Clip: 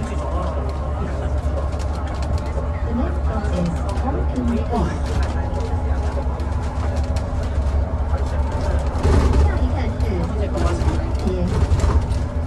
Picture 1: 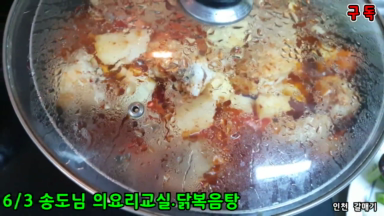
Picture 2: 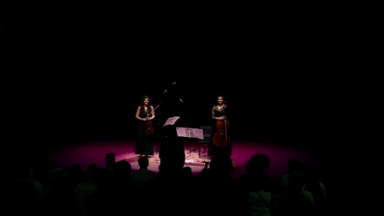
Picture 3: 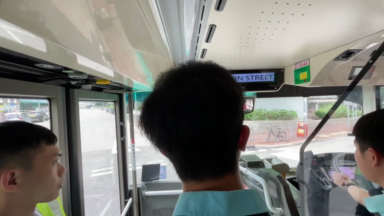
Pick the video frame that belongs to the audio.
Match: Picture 3